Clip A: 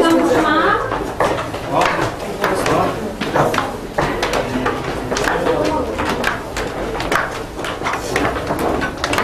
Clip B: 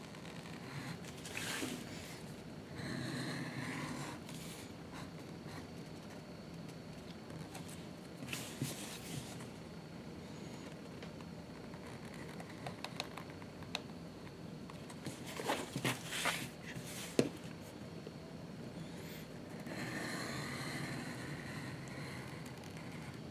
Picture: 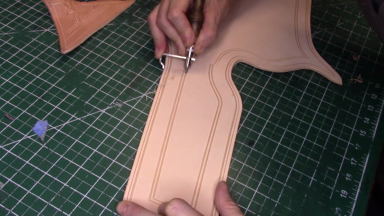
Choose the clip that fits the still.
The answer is B